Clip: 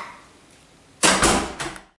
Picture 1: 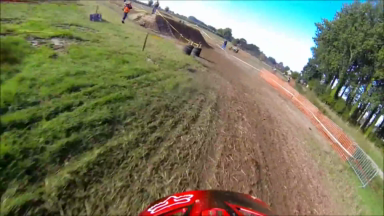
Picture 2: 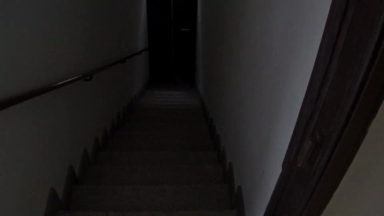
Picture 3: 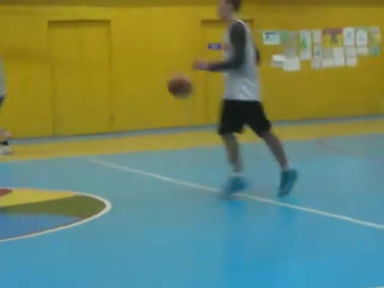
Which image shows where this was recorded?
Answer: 2